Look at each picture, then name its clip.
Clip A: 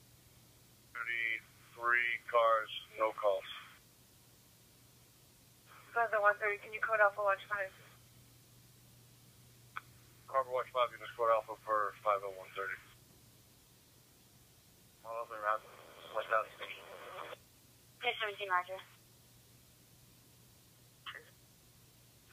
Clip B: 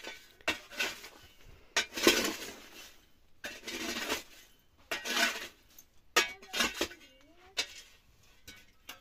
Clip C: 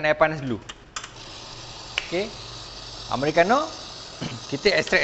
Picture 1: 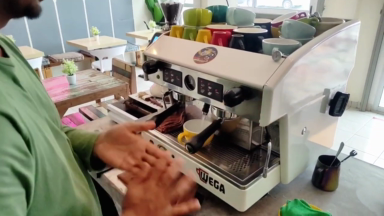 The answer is C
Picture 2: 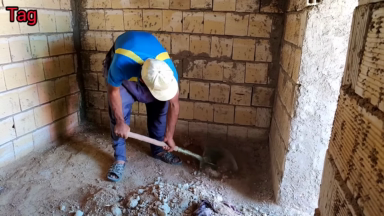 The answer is B